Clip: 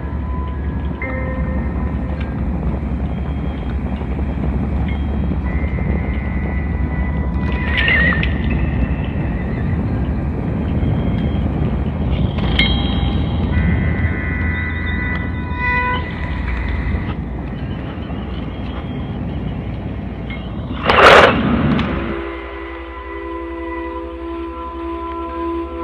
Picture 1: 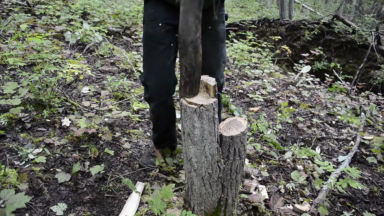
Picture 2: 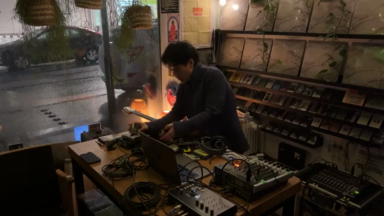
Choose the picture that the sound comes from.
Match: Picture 2